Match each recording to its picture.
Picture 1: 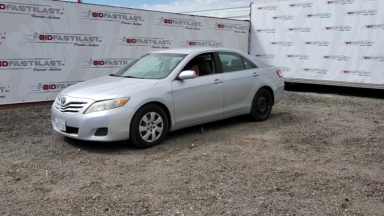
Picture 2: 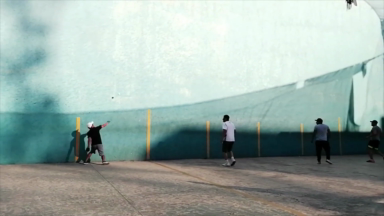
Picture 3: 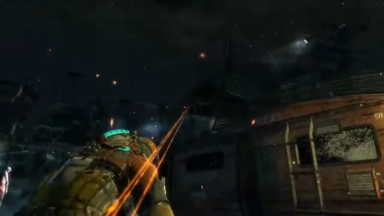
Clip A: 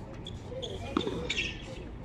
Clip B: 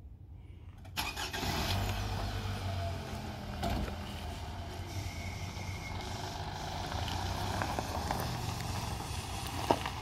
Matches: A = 2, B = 1